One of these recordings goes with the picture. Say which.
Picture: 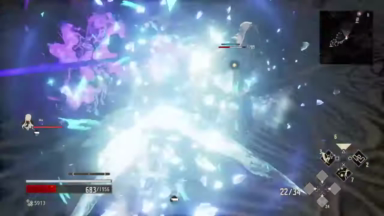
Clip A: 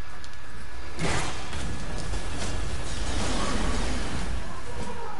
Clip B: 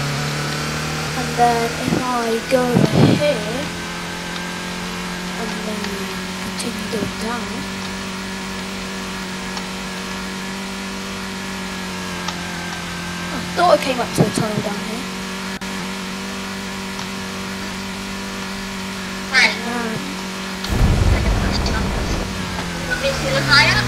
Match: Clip A